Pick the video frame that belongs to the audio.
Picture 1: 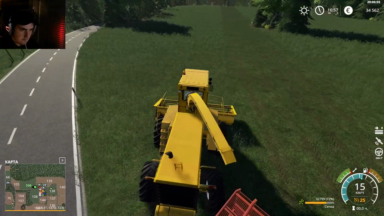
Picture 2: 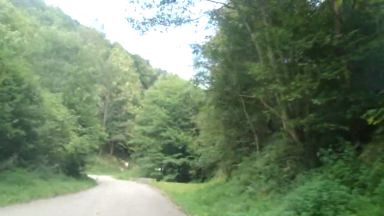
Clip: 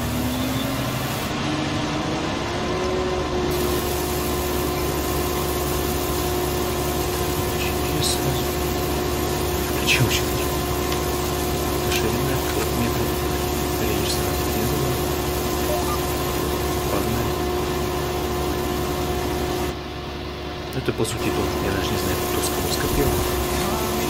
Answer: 1